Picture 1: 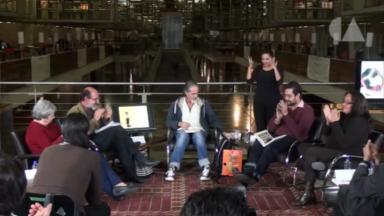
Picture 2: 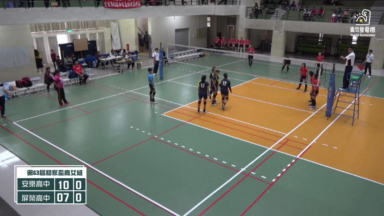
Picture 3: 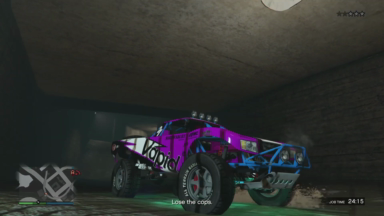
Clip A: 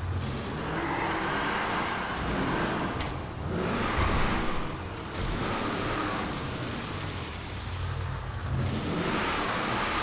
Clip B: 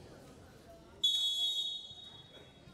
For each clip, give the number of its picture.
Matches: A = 3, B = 2